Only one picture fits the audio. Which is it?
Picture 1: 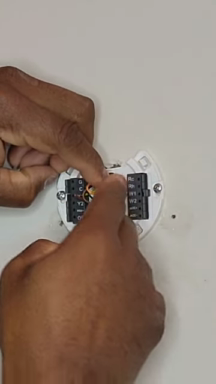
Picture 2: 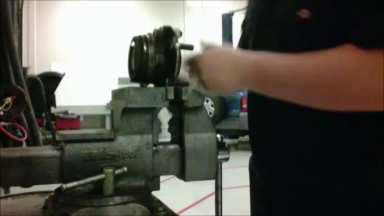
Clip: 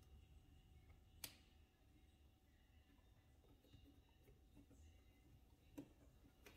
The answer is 1